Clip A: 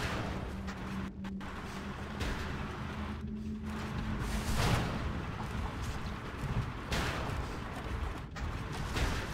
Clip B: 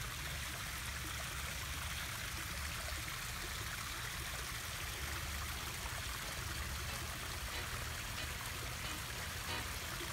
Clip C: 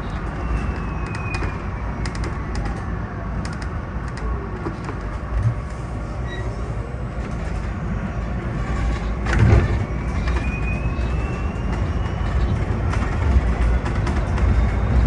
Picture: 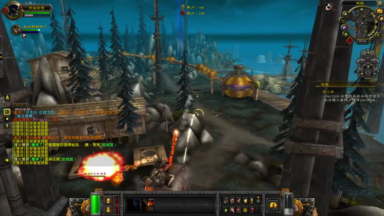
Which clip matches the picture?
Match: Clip A